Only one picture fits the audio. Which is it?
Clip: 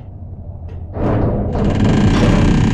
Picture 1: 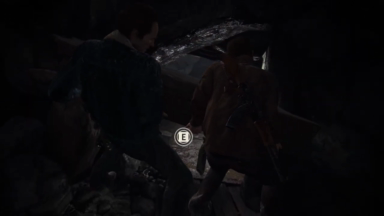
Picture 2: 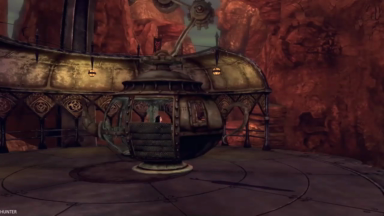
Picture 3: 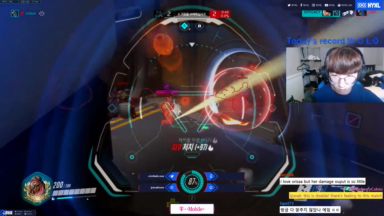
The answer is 2